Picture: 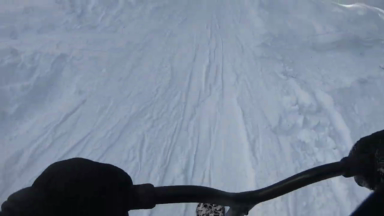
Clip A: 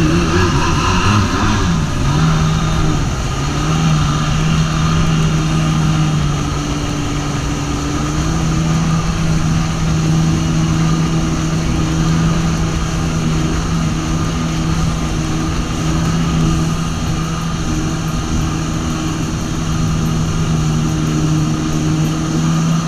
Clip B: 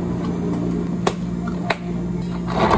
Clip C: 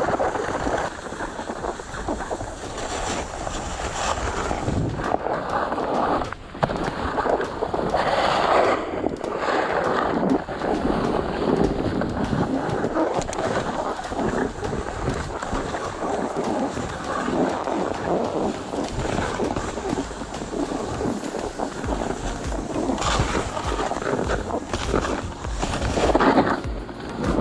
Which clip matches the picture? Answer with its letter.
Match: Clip C